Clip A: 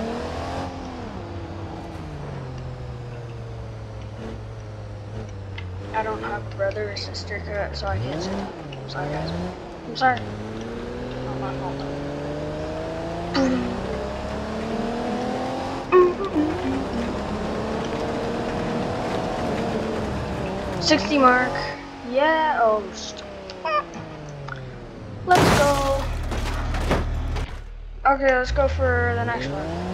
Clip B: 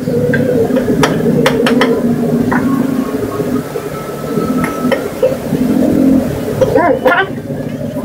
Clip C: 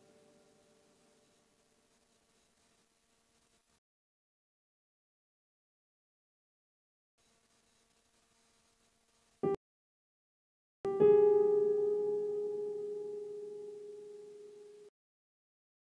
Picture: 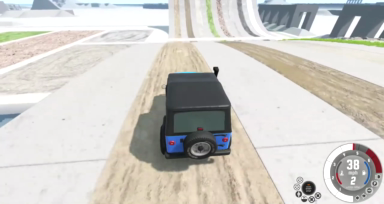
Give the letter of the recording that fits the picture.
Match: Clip A